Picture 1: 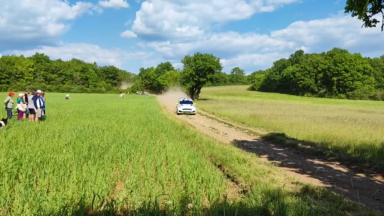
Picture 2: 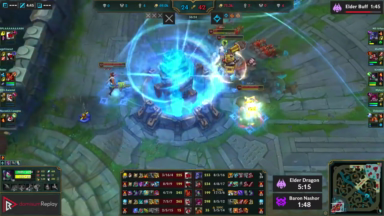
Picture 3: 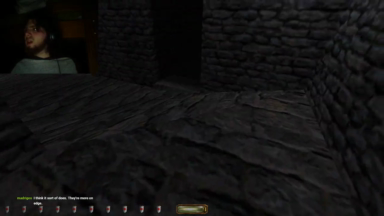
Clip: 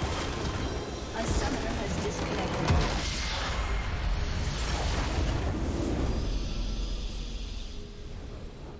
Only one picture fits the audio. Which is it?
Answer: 2